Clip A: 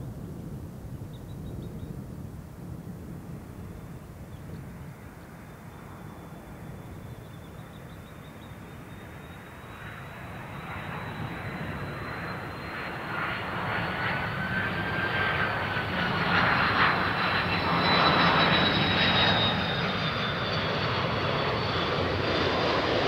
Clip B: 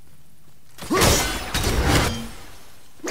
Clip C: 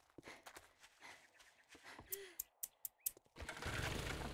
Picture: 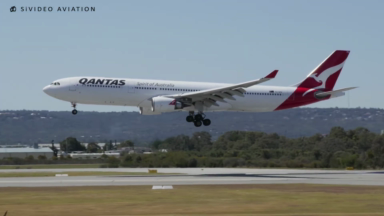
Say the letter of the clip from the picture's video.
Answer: A